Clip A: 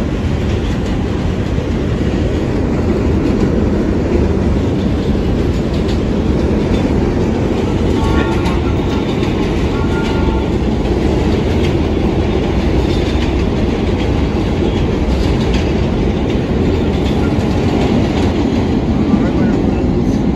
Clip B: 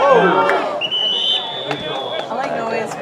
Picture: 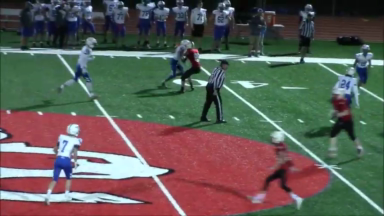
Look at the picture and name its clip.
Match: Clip B